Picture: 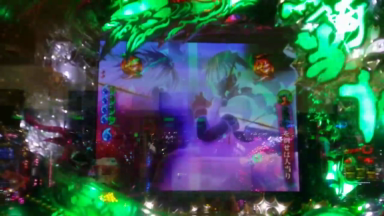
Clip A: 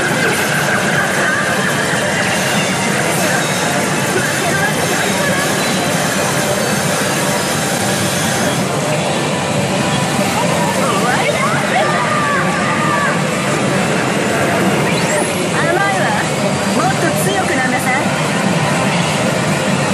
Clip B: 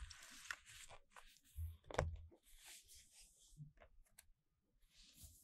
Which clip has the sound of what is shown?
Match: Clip A